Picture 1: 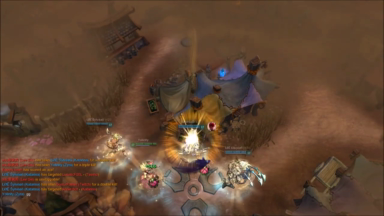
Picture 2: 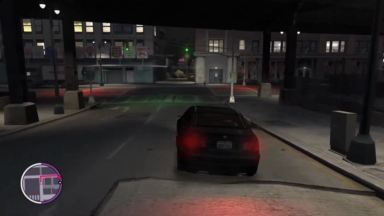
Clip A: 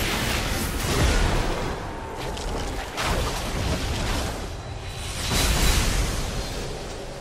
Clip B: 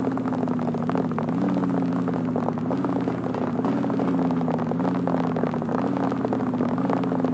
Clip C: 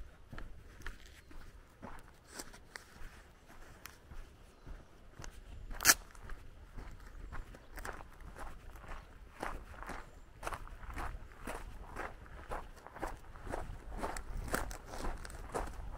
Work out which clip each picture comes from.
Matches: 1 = A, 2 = B